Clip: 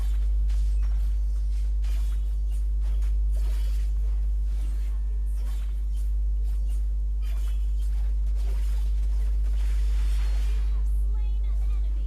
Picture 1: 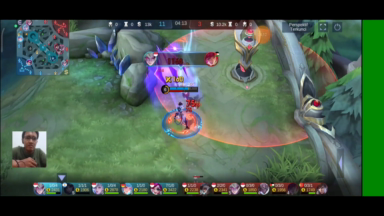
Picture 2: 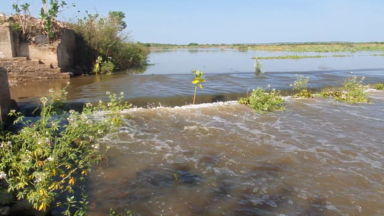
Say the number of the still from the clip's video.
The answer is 1